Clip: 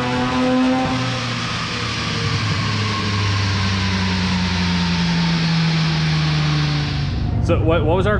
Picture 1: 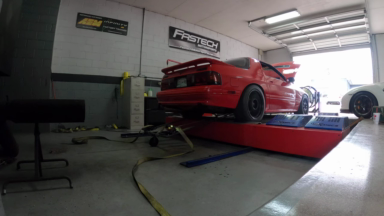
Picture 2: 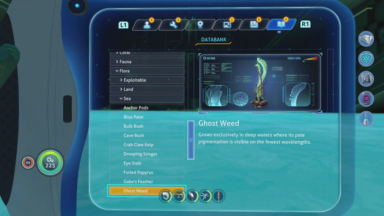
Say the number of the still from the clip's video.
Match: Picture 1